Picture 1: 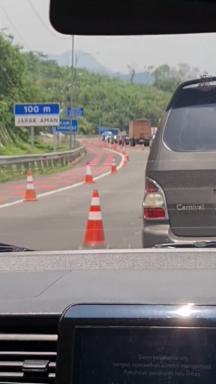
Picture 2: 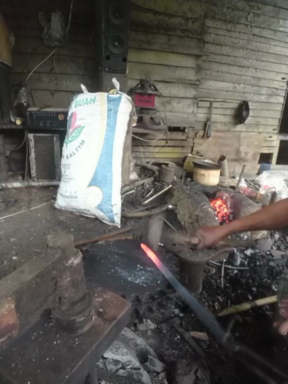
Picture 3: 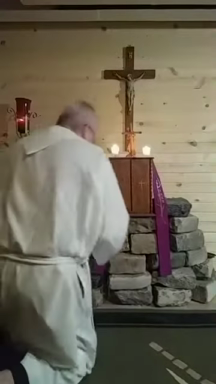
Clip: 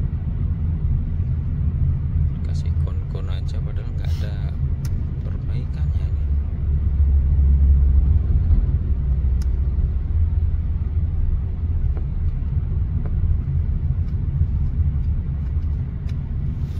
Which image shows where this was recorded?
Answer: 1